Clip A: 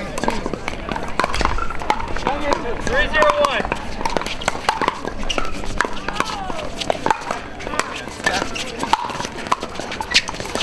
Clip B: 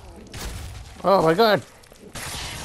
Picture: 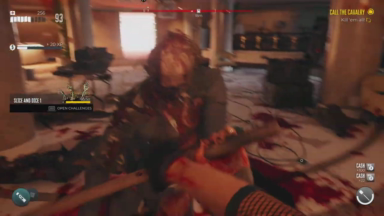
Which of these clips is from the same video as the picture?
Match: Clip B